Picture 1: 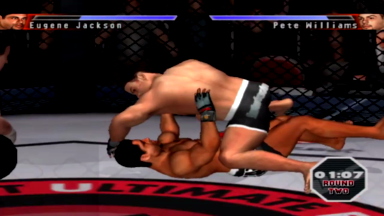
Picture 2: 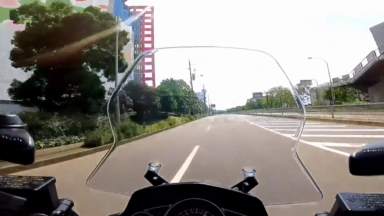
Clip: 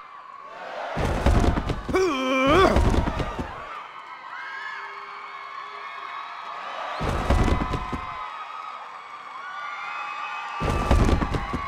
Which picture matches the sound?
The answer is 1